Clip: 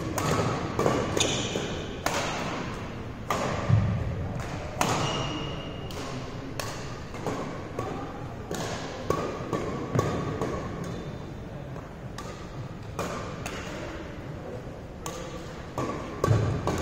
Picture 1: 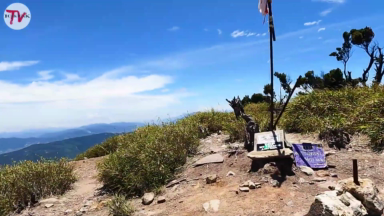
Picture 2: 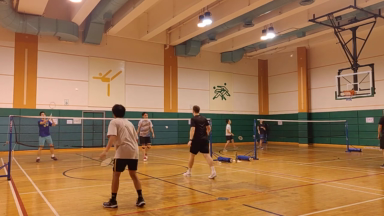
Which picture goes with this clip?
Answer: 2